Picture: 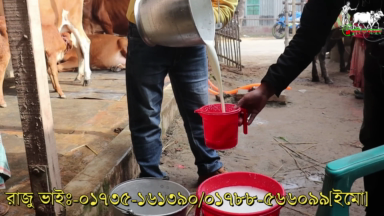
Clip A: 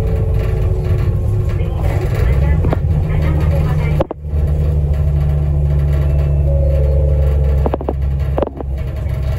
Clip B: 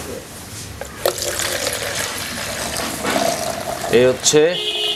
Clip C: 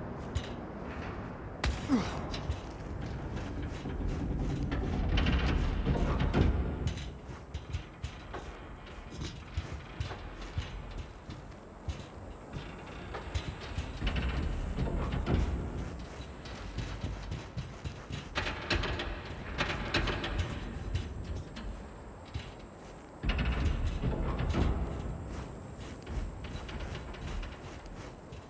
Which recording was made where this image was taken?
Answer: B